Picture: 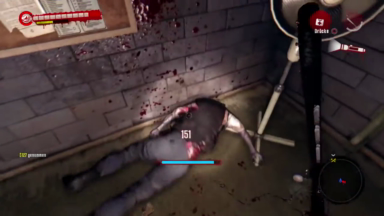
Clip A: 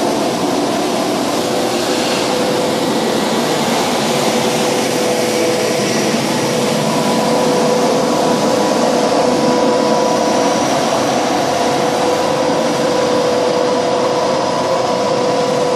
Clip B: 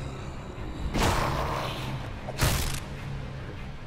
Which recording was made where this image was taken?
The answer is B